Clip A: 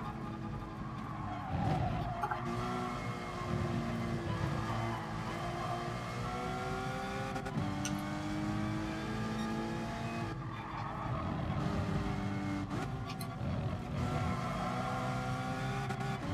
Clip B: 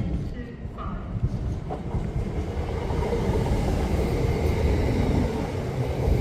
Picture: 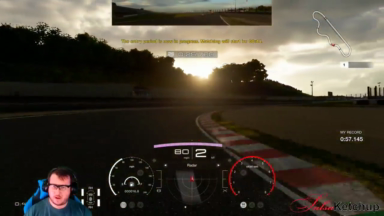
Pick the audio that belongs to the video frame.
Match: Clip A